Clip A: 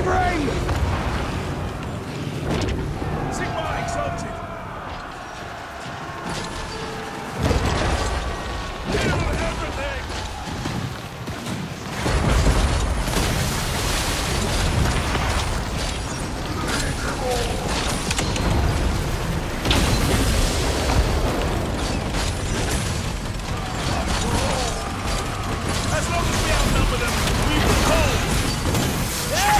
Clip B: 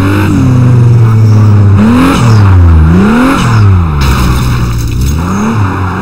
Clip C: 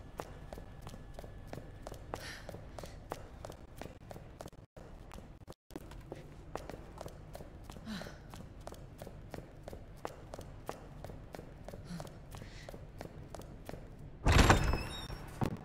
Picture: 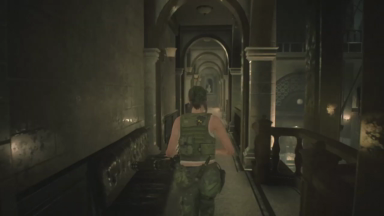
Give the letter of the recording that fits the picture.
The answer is C